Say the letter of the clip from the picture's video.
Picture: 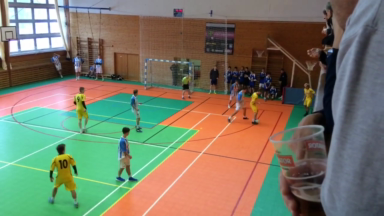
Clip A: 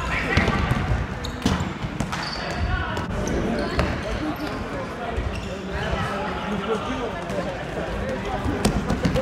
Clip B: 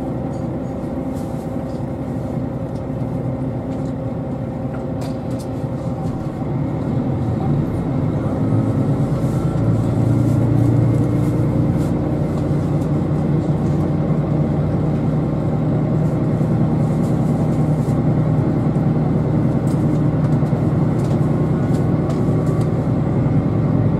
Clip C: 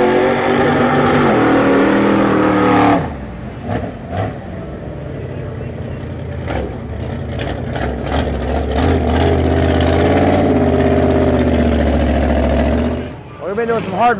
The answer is A